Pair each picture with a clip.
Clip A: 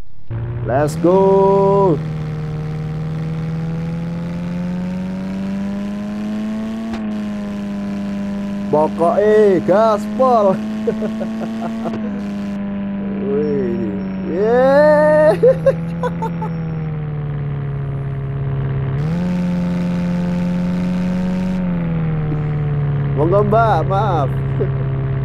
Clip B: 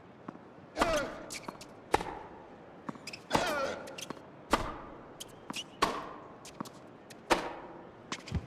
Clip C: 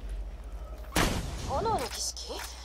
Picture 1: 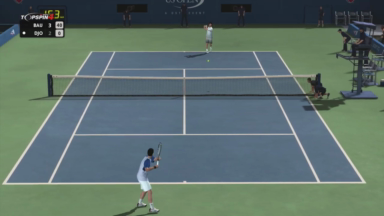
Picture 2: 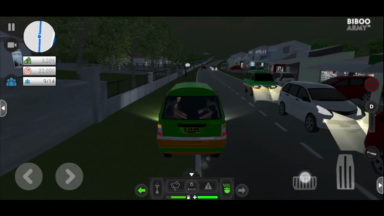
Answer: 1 B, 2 A